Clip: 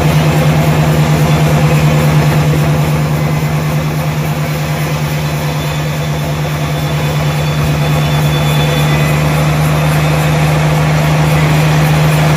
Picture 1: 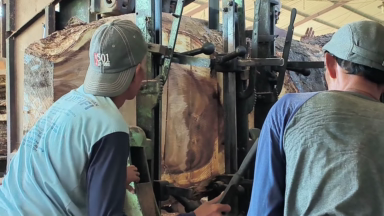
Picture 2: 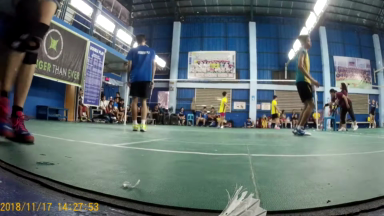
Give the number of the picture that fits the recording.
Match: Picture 1